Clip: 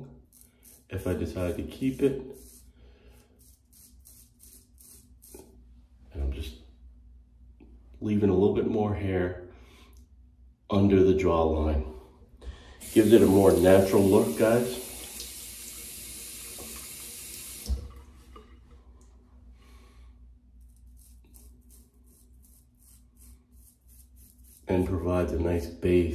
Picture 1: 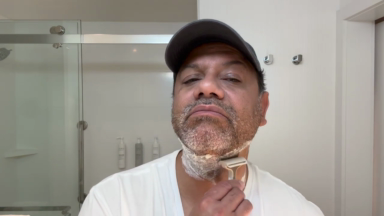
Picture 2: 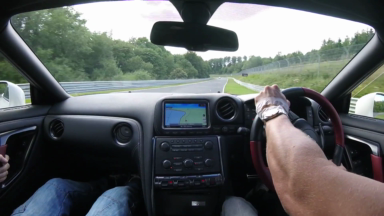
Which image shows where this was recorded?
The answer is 1